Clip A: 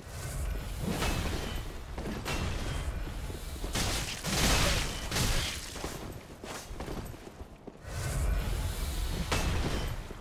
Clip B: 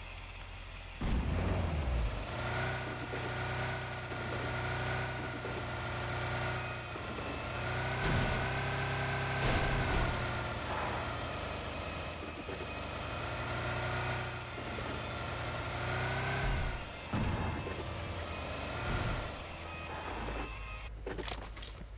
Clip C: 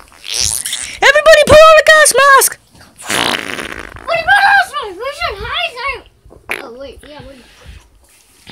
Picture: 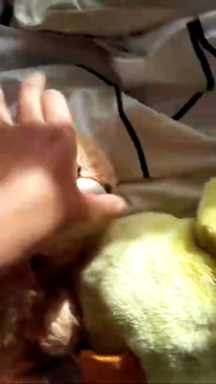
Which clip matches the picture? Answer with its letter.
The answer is C